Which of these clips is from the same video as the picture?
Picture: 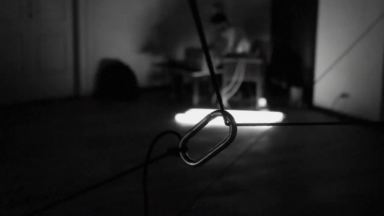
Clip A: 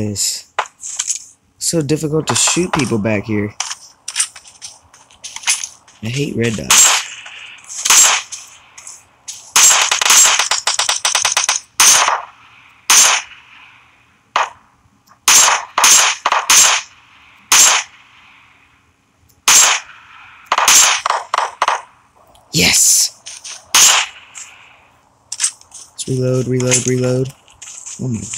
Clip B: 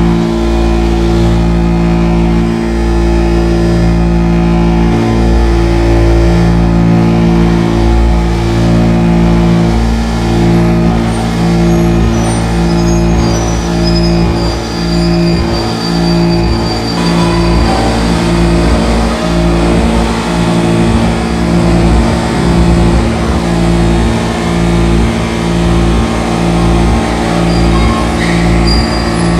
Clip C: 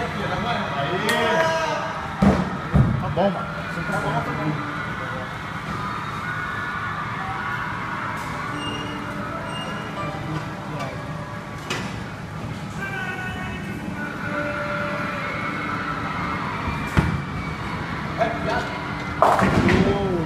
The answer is B